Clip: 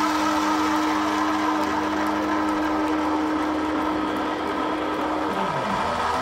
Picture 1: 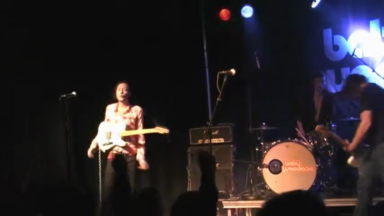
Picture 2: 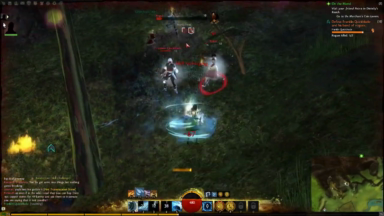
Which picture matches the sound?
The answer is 1